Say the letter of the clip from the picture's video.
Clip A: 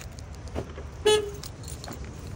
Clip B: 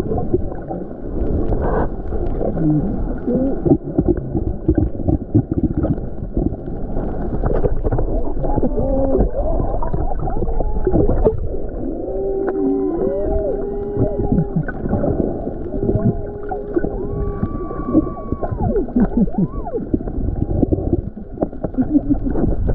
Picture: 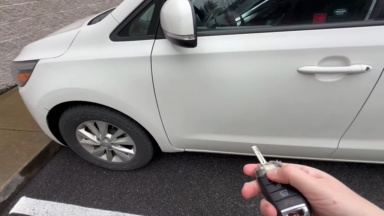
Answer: A